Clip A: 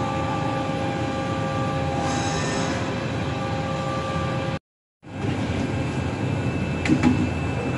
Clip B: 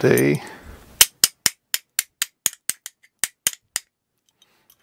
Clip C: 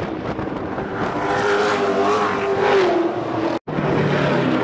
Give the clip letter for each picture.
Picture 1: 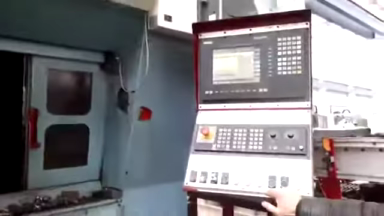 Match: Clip A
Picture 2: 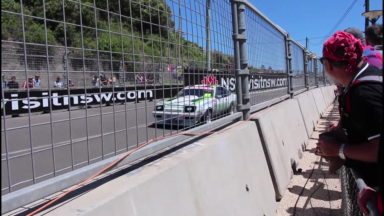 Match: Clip C